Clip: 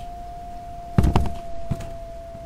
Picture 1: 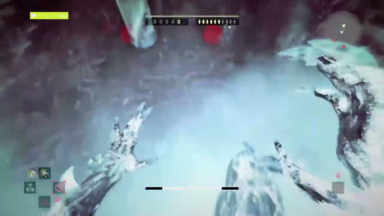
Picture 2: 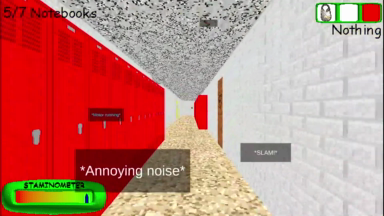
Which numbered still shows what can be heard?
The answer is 2